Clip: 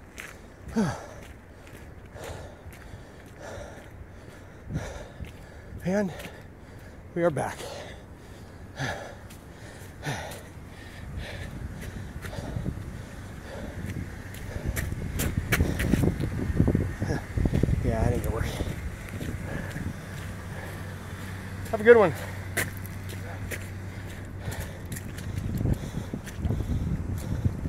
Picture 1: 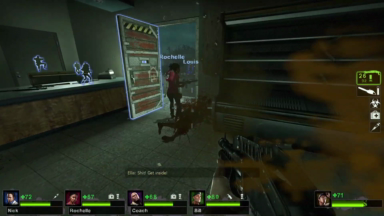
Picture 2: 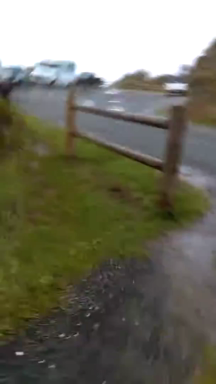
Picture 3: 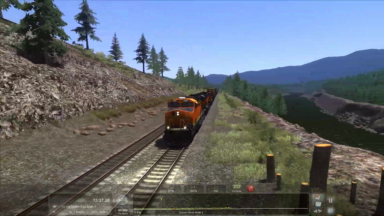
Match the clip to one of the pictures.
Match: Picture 2